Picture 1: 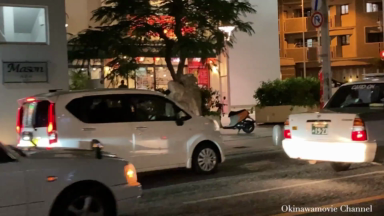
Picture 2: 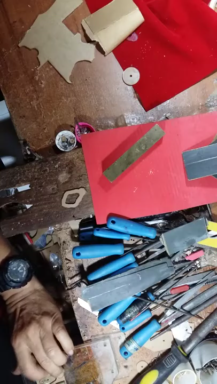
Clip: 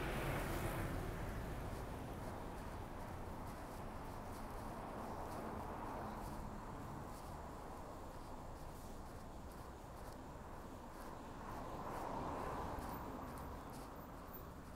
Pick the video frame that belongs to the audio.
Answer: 1